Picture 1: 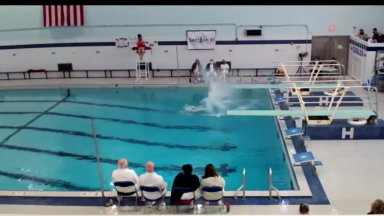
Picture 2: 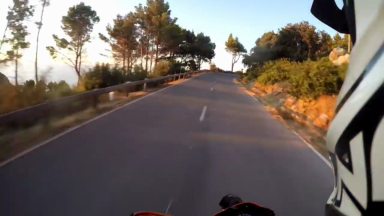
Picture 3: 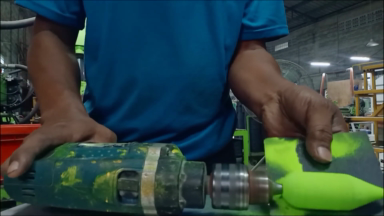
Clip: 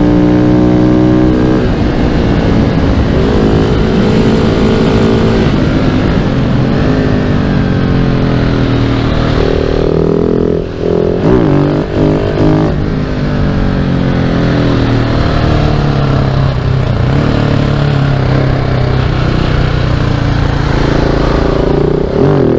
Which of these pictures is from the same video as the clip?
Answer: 2